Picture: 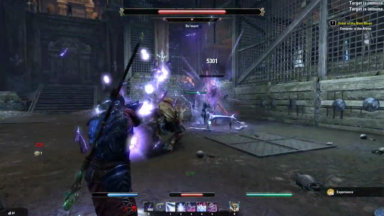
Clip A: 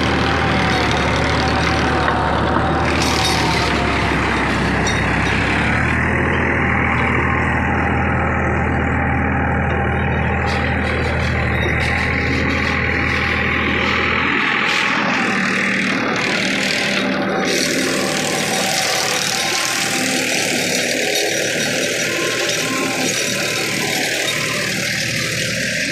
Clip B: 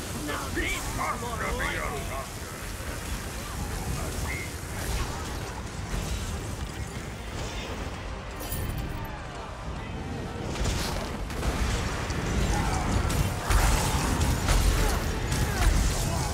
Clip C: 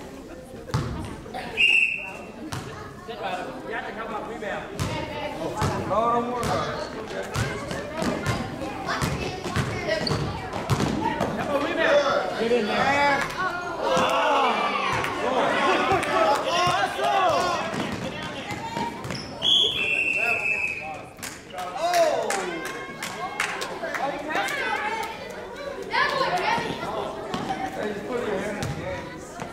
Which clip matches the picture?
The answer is B